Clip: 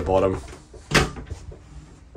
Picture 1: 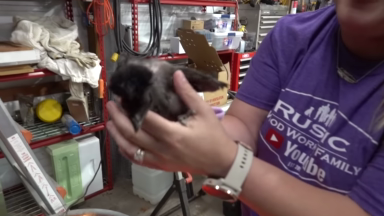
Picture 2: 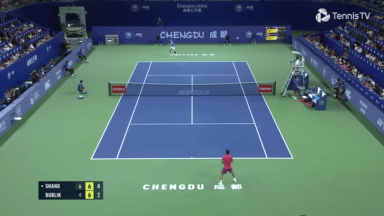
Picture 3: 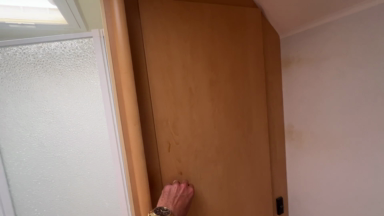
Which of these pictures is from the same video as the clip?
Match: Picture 3